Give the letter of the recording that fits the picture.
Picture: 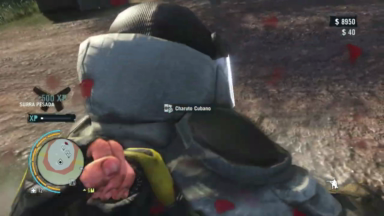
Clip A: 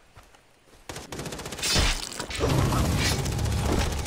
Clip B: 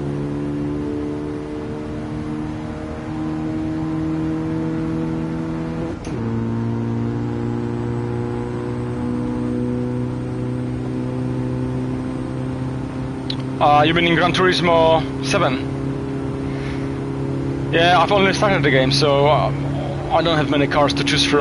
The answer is A